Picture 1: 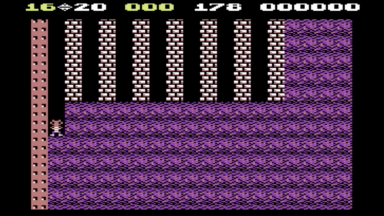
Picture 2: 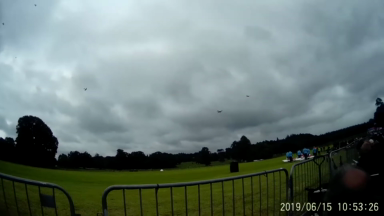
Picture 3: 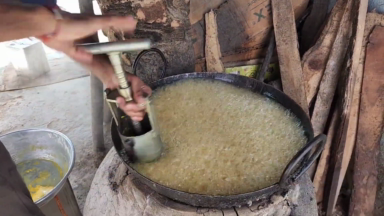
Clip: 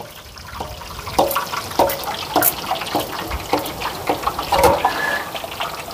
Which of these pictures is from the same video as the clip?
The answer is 3